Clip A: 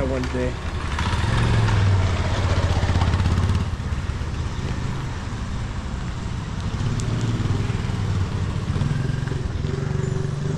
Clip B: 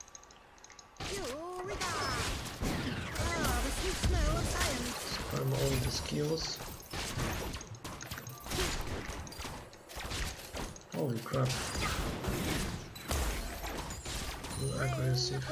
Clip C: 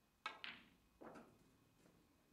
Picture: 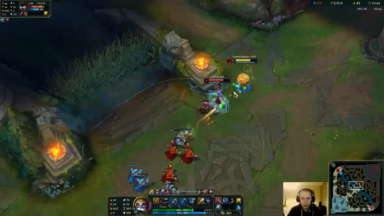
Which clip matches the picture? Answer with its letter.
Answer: B